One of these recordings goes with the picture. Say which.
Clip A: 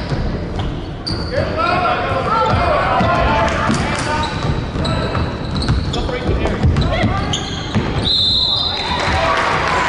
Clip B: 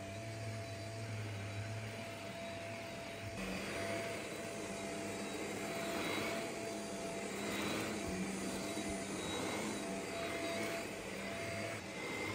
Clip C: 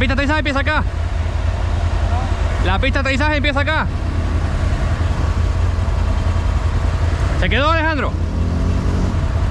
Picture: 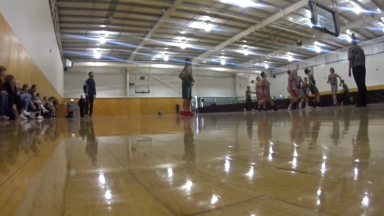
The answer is A